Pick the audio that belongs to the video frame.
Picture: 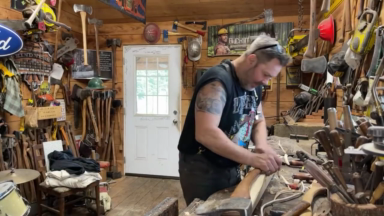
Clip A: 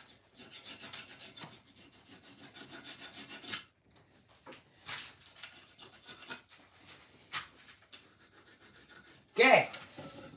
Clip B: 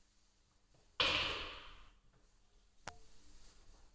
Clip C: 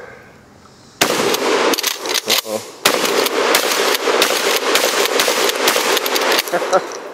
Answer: A